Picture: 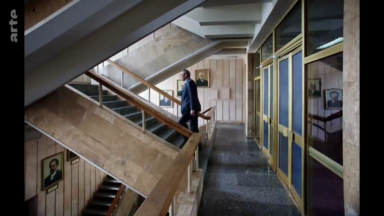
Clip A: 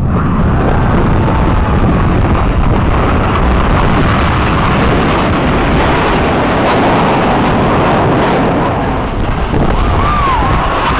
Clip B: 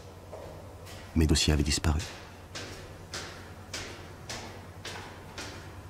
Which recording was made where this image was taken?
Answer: B